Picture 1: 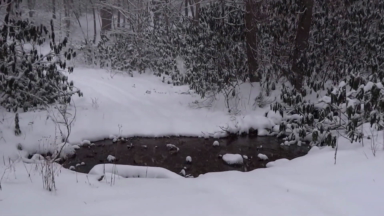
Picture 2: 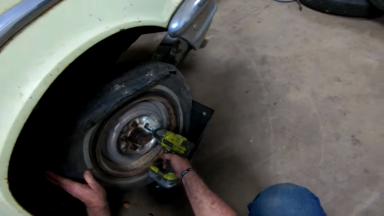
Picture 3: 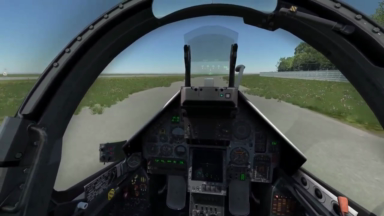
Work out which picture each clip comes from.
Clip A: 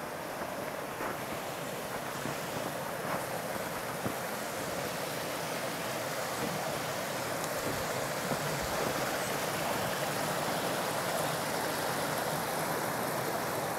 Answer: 1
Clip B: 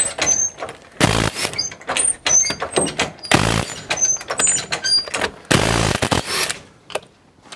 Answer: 2